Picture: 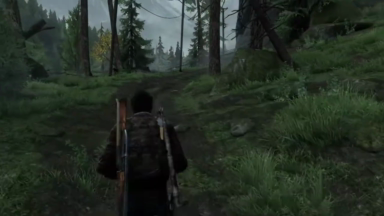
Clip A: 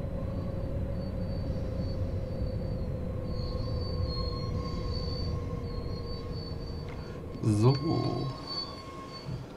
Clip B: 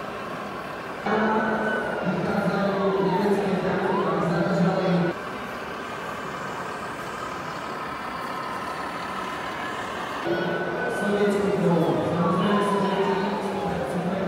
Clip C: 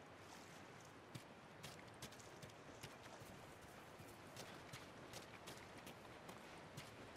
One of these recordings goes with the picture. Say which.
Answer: C